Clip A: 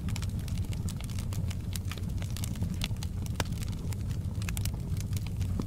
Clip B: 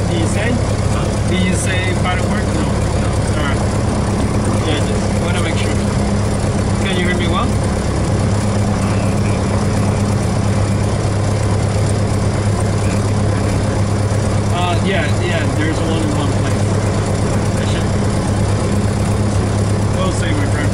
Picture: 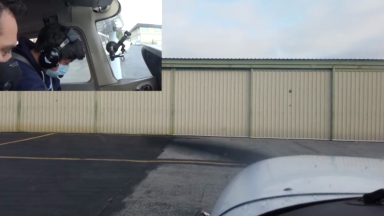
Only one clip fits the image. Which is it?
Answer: B